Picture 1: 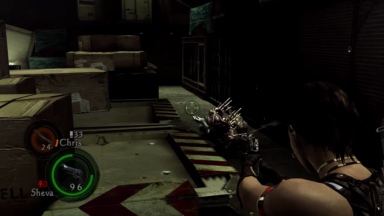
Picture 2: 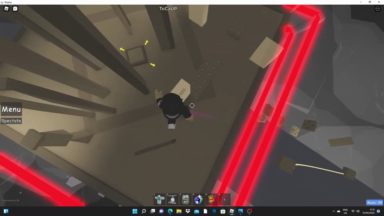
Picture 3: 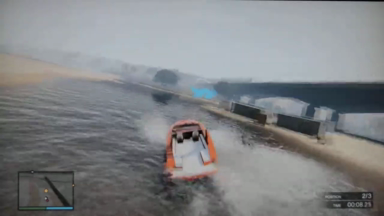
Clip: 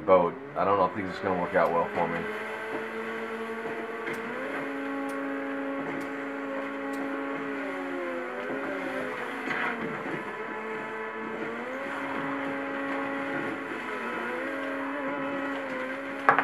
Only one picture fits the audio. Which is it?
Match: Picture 3